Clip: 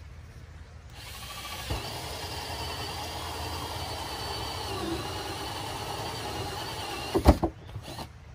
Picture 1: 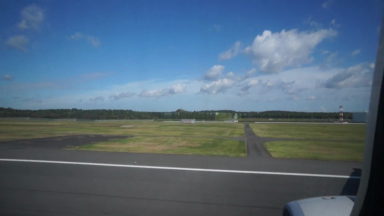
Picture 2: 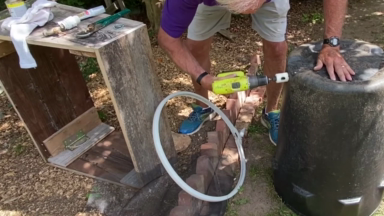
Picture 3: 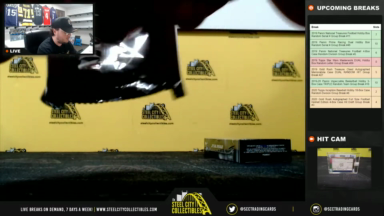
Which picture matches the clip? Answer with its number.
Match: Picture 2